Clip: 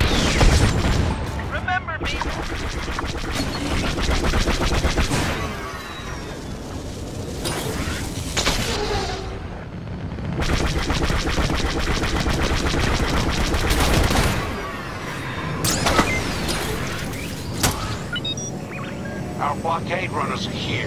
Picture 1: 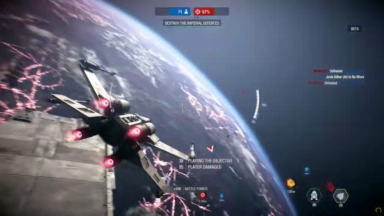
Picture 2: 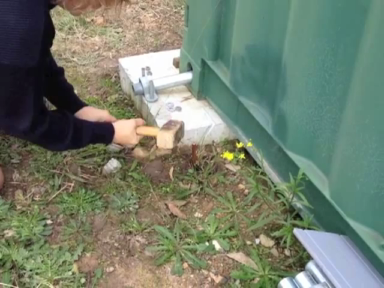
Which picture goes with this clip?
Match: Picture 1